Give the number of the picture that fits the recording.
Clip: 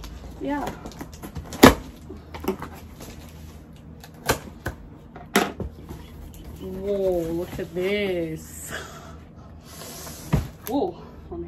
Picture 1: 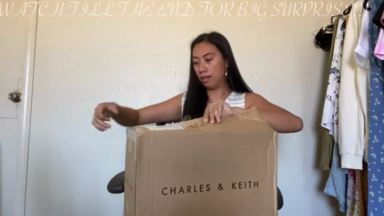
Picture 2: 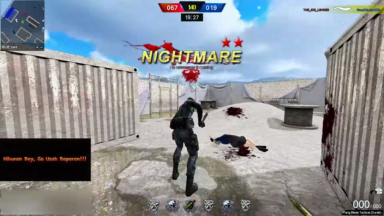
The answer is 1